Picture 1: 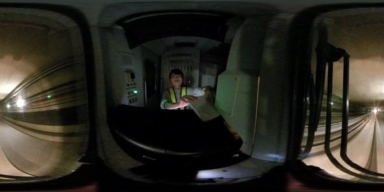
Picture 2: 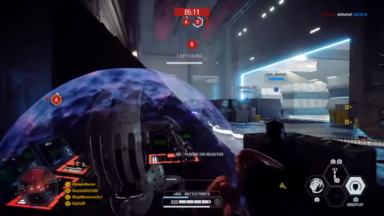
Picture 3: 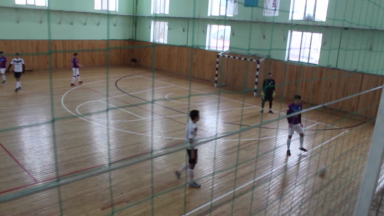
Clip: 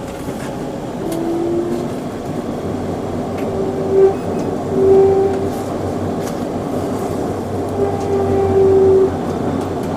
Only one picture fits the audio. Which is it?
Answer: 1